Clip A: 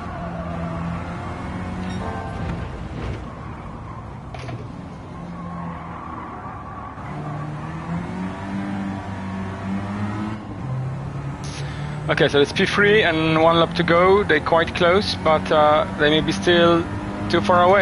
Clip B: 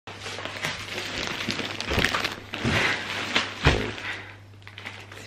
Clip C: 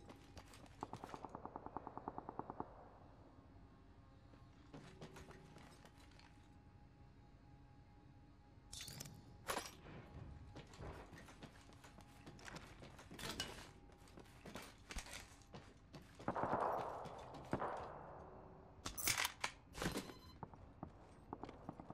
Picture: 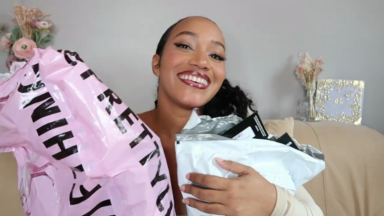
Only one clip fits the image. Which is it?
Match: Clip B